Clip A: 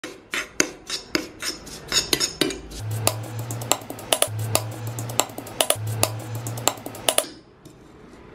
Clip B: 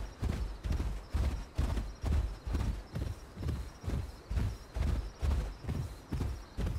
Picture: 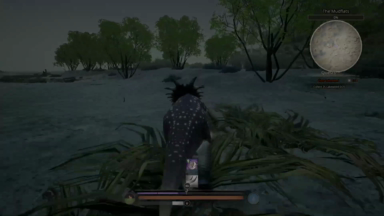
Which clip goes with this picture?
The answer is B